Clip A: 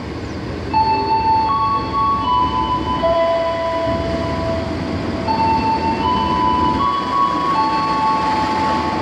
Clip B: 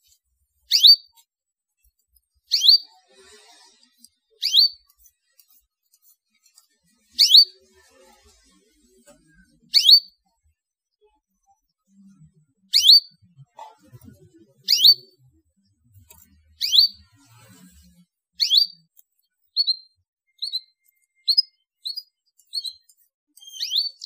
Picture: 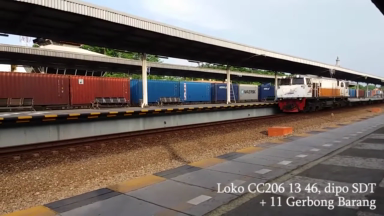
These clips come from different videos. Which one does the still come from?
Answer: A